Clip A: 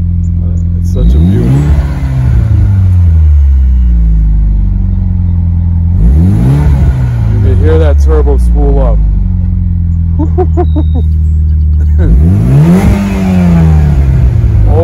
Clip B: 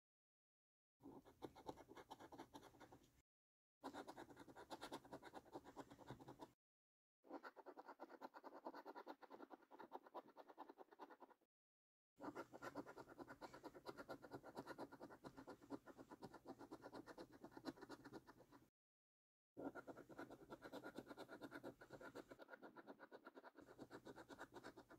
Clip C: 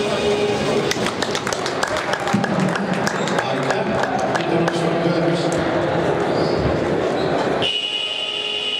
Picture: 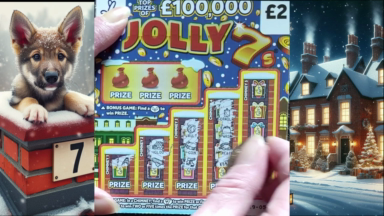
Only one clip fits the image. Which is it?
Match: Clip B